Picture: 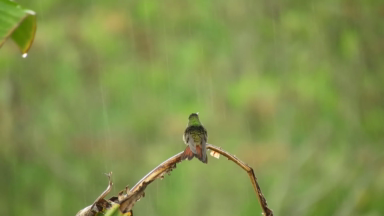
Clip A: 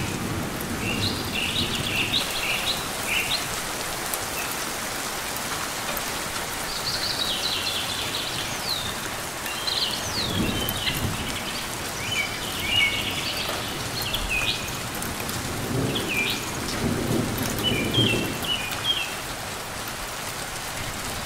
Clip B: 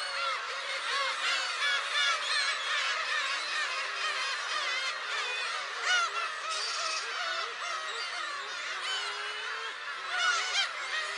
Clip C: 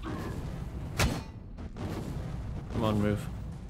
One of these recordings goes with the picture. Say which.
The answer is A